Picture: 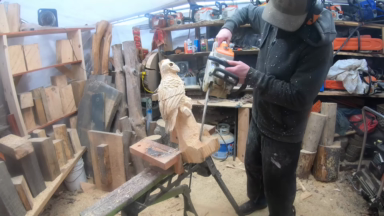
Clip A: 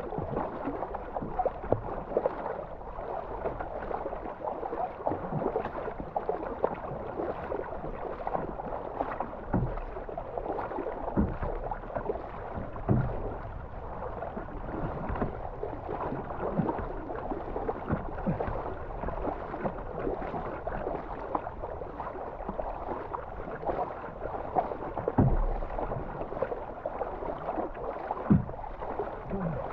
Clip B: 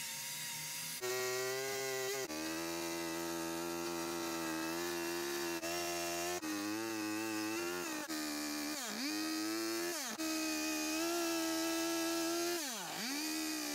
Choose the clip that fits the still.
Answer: B